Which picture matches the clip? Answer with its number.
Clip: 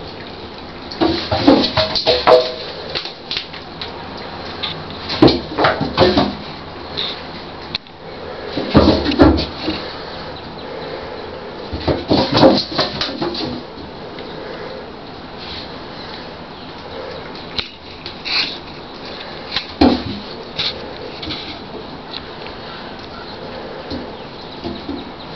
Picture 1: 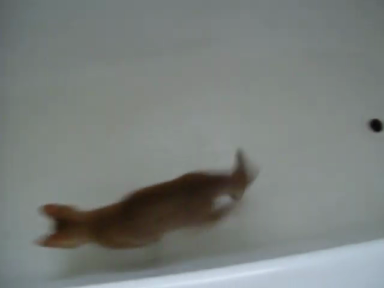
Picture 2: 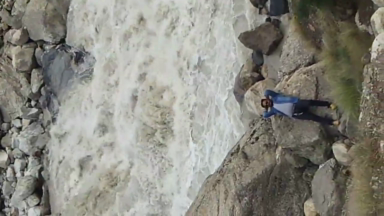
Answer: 1